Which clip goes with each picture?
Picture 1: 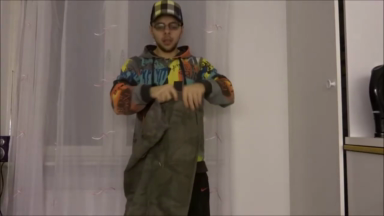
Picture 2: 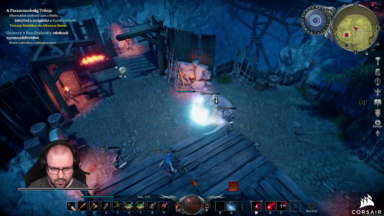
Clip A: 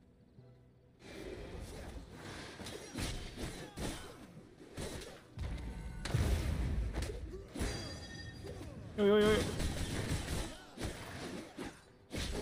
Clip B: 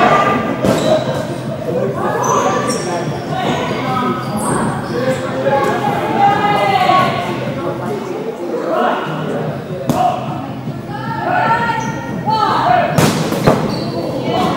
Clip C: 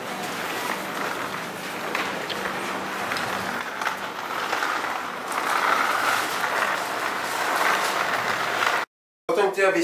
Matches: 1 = C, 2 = A